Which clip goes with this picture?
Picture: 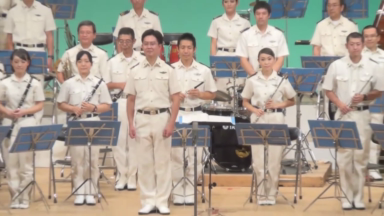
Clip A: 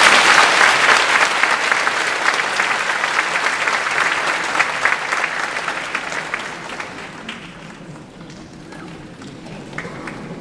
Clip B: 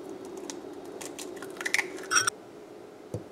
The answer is A